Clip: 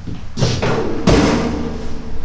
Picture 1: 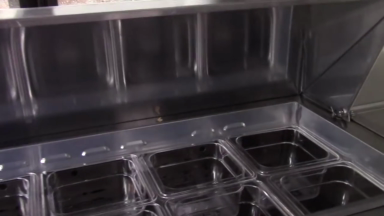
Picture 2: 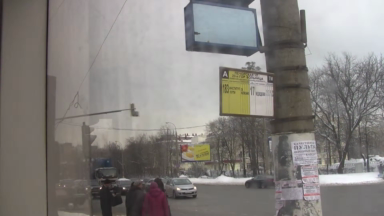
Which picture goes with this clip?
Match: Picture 1